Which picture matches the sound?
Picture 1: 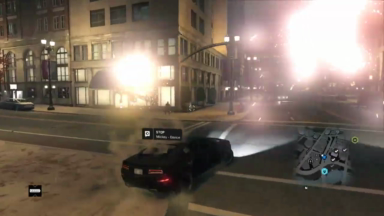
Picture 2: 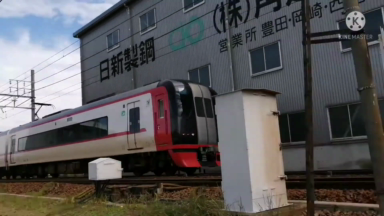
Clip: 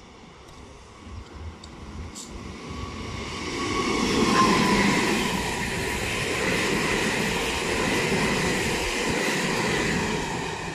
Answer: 2